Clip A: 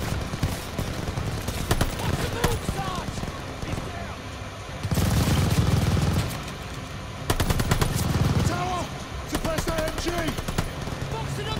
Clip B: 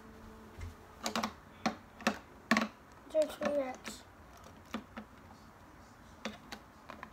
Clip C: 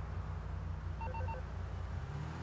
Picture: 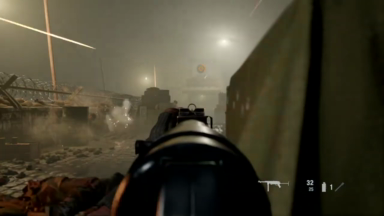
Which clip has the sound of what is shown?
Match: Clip A